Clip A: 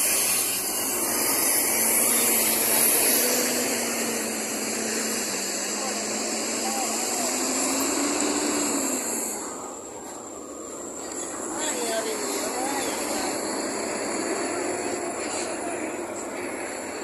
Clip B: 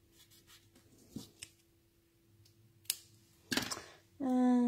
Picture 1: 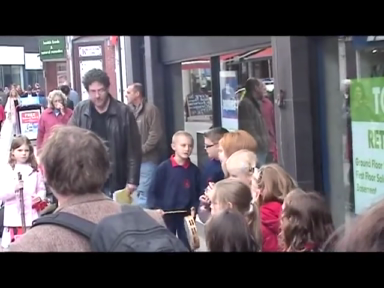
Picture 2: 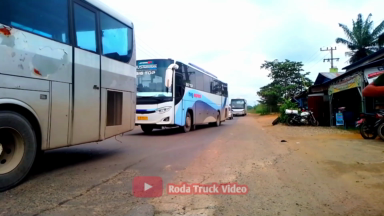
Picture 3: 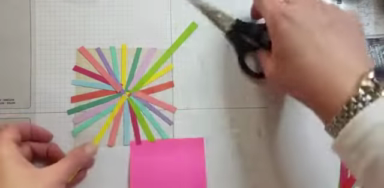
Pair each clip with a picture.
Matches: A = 2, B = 3